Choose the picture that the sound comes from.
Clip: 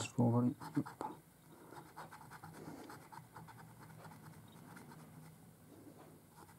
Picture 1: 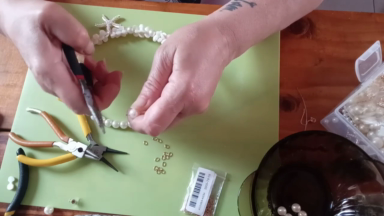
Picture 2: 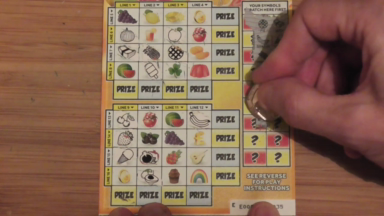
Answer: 2